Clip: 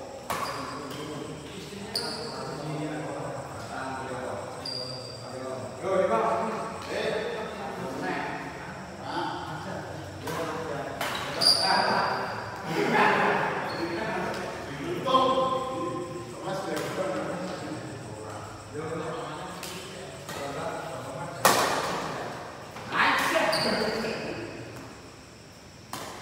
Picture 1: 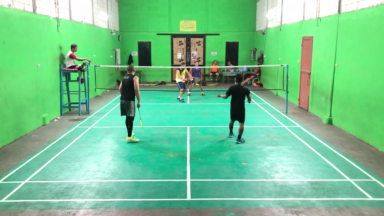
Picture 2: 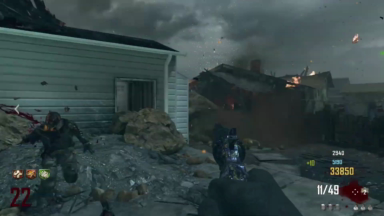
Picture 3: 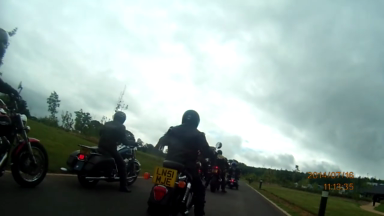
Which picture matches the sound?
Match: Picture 1